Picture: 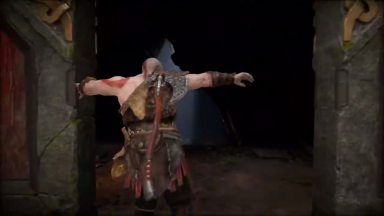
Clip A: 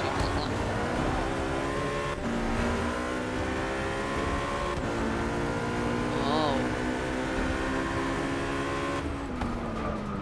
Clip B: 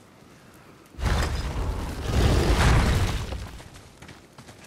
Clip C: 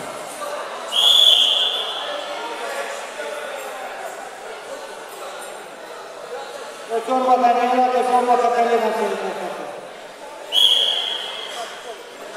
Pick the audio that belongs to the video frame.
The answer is B